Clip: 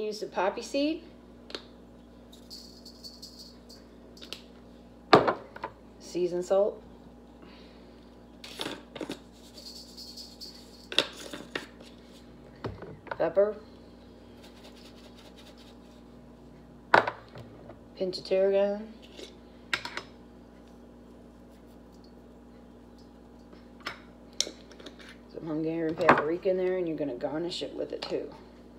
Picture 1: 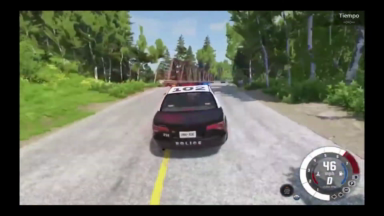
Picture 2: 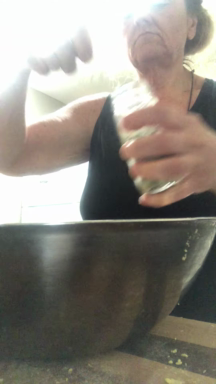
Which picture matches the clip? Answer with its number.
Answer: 2